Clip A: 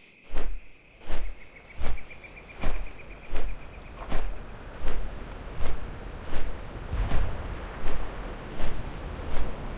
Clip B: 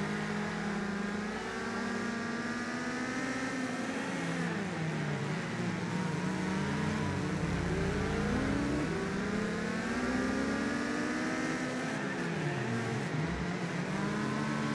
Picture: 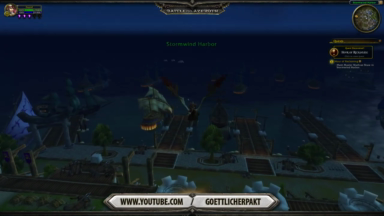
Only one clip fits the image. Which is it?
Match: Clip A